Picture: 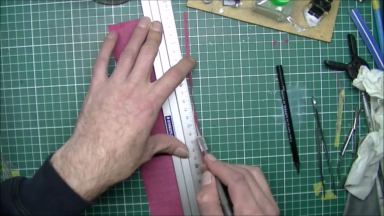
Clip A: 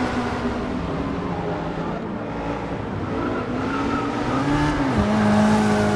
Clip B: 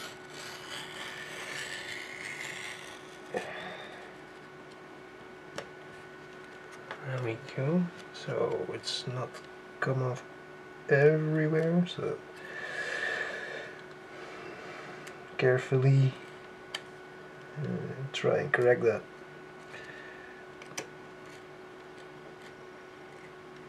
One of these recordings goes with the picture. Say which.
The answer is B